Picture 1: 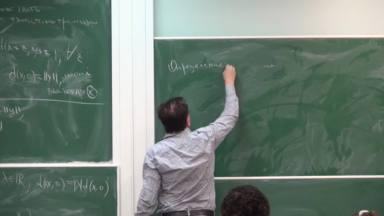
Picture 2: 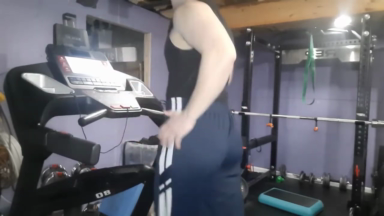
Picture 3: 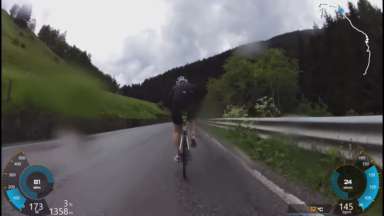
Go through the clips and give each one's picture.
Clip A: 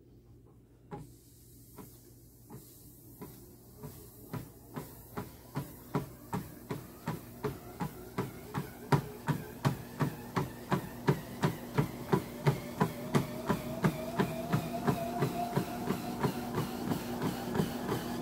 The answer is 2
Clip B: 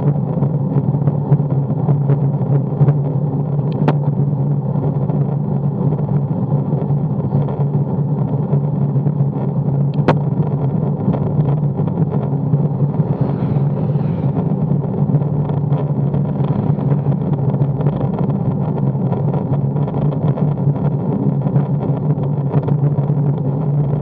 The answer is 3